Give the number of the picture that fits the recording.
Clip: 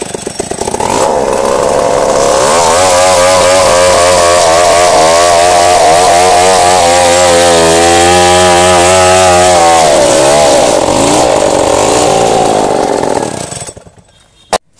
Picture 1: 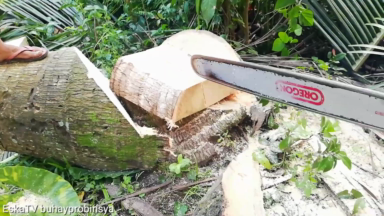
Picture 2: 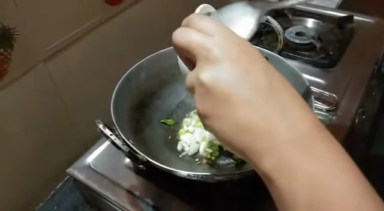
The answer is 1